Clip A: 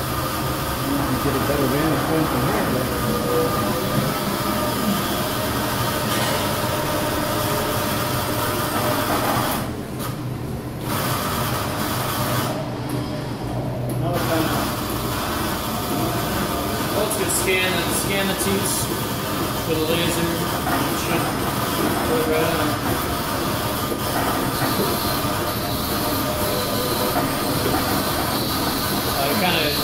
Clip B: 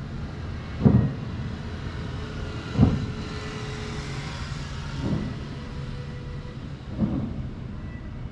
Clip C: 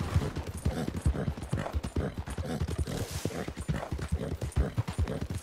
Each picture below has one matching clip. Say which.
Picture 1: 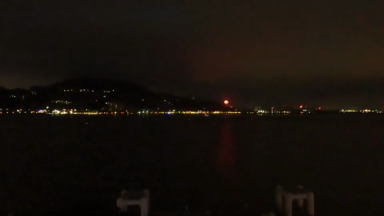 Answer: B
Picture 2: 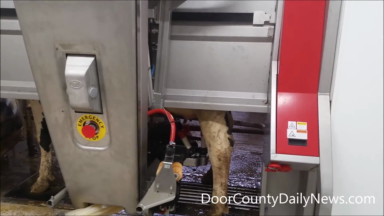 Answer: A